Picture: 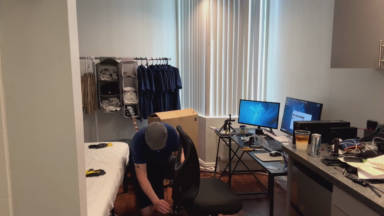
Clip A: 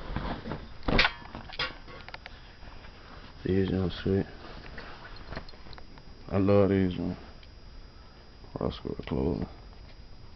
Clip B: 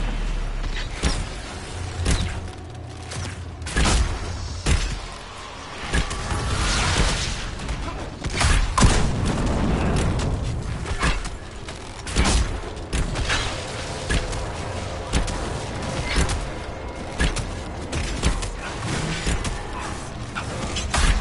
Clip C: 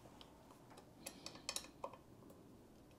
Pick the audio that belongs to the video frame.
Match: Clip C